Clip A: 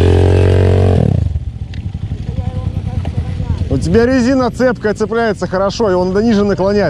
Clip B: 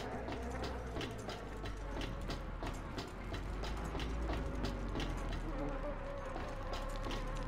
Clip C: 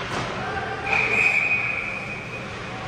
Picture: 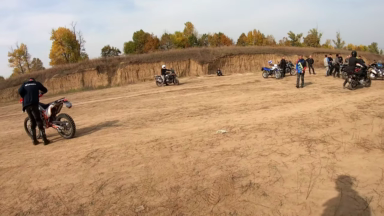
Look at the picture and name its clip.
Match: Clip A